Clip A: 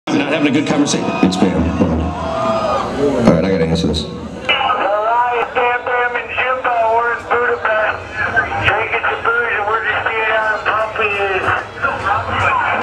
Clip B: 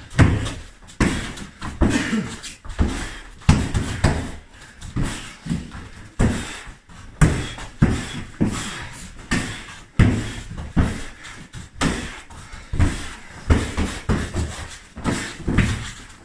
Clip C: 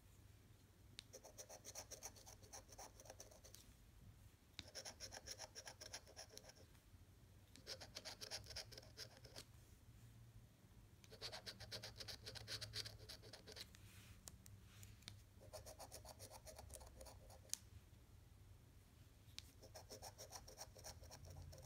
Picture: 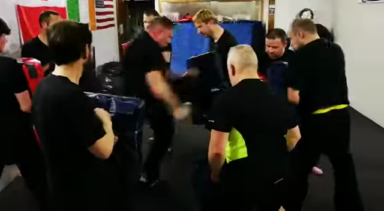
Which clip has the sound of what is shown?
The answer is B